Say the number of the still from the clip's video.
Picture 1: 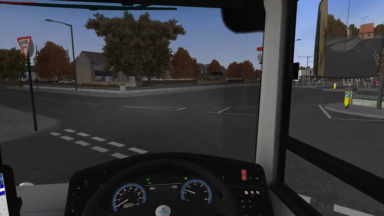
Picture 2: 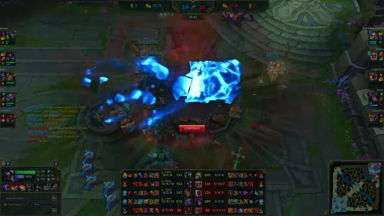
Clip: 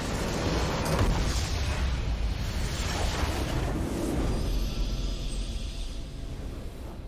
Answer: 2